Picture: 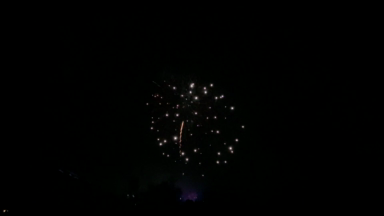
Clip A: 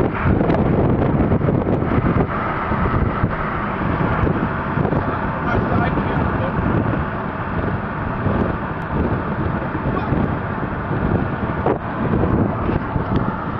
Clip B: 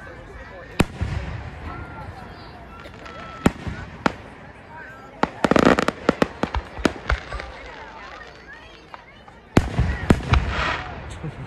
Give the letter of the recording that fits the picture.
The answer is B